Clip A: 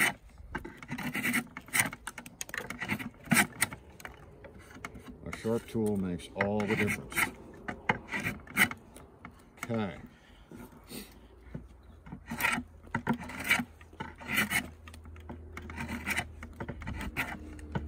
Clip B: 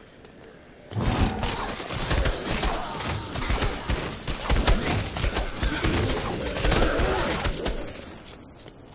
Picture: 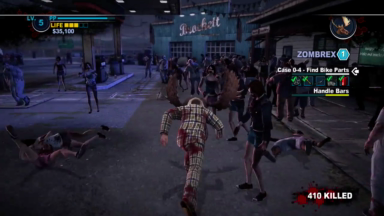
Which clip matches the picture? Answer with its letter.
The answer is B